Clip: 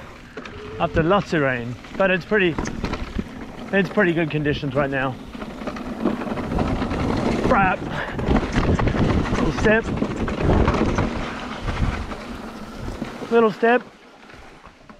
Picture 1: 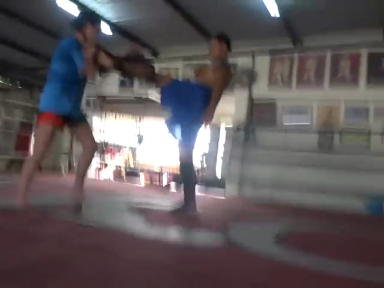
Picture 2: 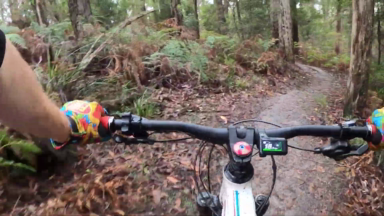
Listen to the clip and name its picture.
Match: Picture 2